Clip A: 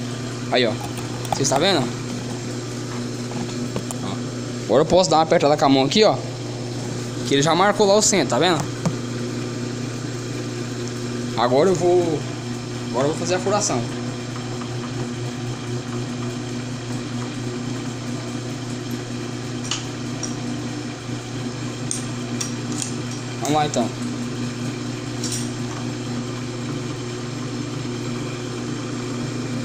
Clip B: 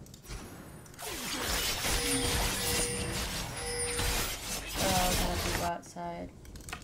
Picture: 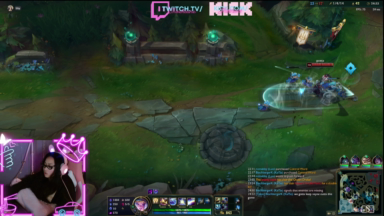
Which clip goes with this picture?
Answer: B